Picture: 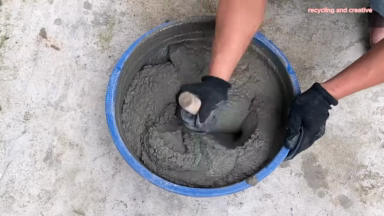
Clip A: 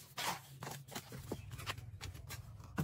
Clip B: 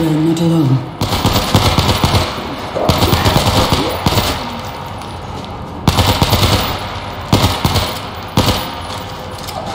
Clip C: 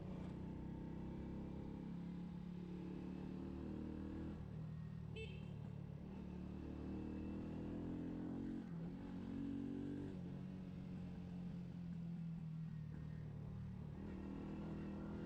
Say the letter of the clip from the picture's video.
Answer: A